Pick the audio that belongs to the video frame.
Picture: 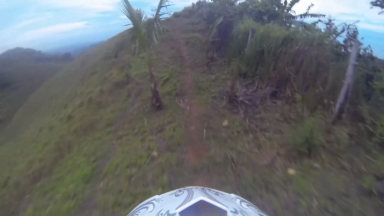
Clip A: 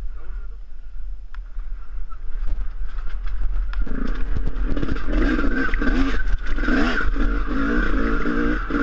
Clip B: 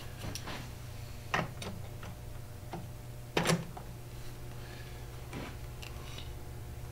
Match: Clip A